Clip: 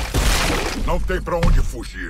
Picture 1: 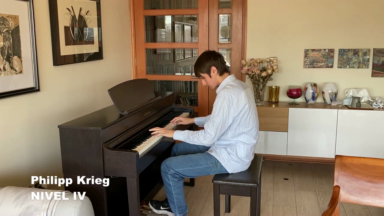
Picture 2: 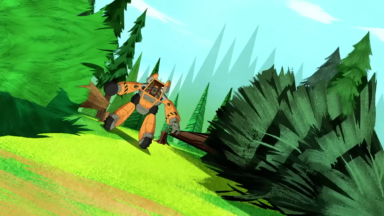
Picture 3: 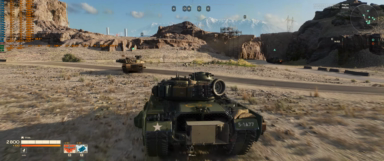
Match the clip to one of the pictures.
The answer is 2